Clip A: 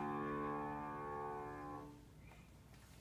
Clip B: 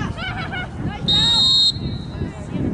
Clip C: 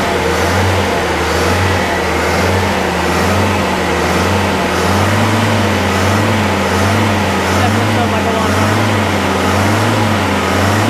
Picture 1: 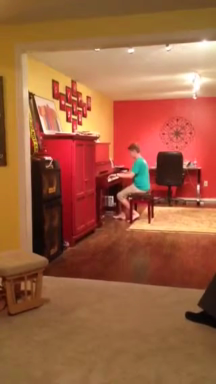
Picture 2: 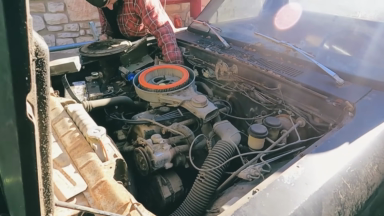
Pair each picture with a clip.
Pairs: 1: A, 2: C